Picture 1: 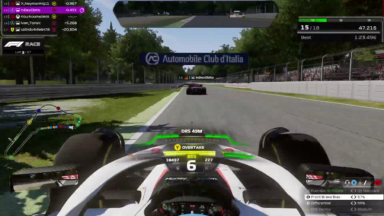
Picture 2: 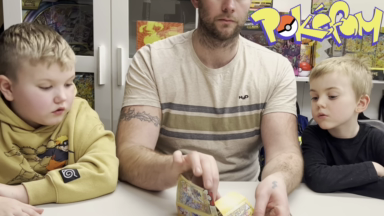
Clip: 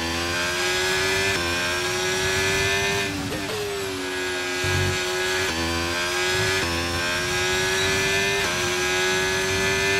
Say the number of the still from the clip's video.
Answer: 1